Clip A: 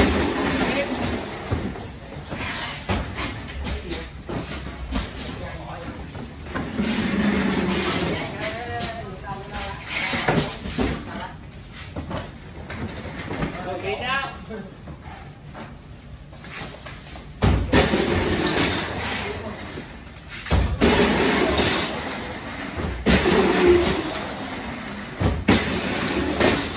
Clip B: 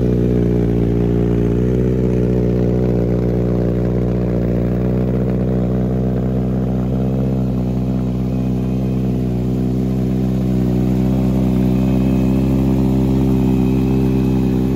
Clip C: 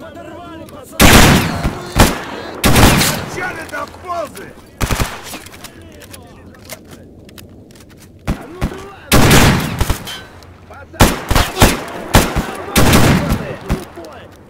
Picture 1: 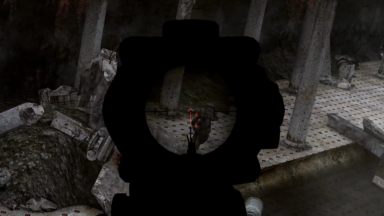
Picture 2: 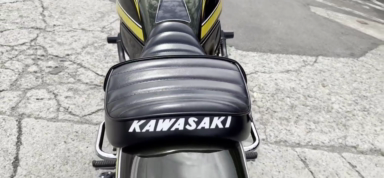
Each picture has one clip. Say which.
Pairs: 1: C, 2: B